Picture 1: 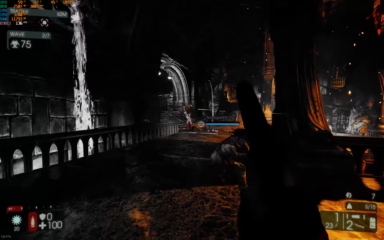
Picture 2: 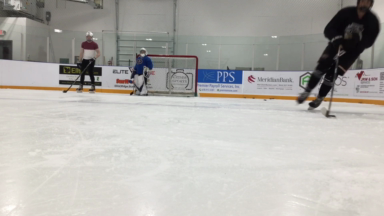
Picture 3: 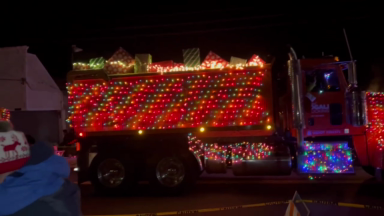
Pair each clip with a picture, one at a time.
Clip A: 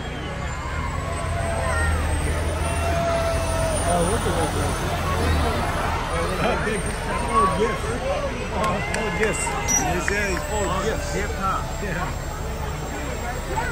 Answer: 3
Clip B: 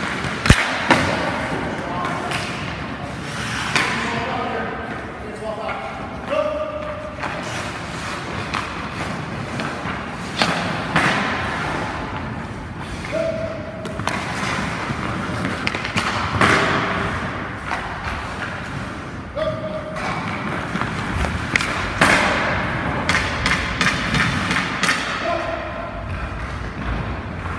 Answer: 2